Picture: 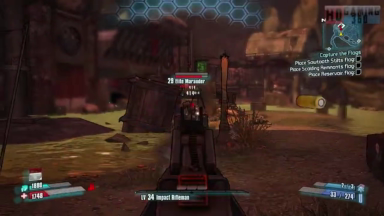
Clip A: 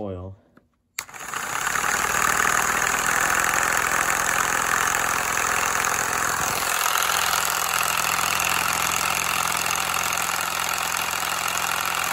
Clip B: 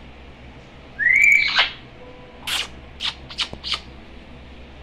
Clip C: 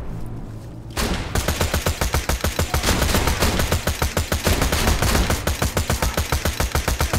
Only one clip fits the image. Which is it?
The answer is C